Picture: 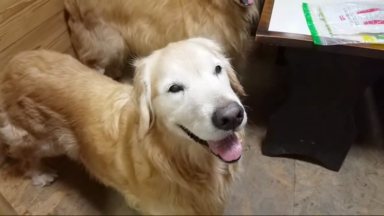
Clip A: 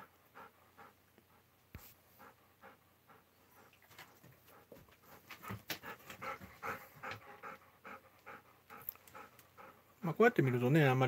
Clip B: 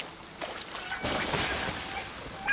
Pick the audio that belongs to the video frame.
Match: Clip A